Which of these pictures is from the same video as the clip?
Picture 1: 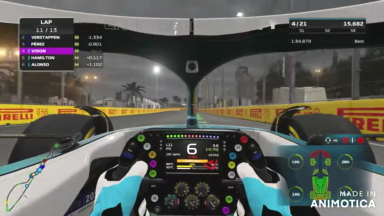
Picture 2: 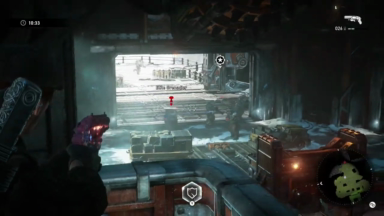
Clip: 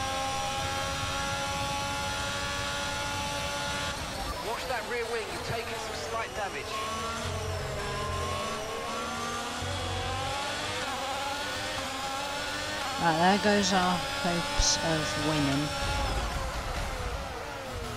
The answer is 1